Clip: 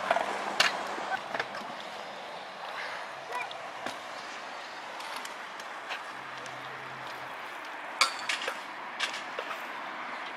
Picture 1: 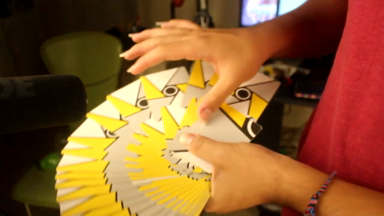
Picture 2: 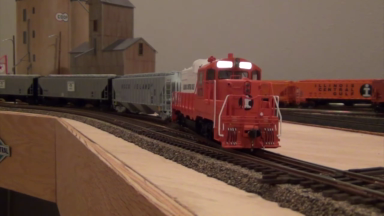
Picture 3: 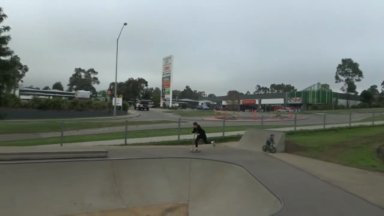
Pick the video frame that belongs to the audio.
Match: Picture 3